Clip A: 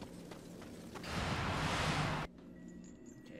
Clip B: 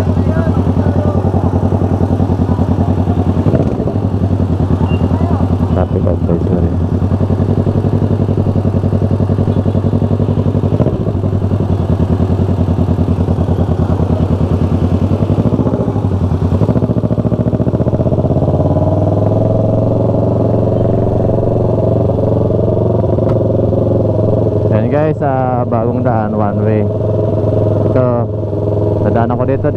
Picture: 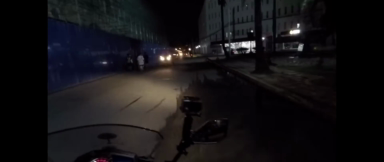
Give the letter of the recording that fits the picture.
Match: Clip B